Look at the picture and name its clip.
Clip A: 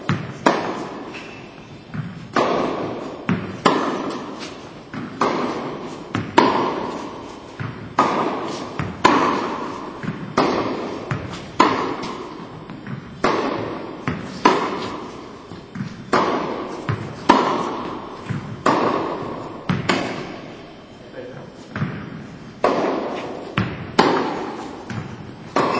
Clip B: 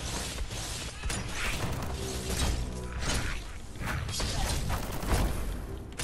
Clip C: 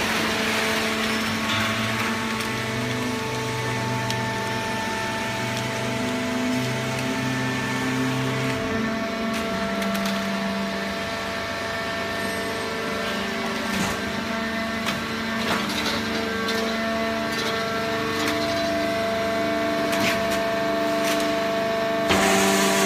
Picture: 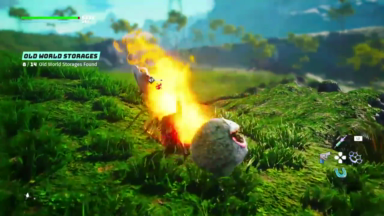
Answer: B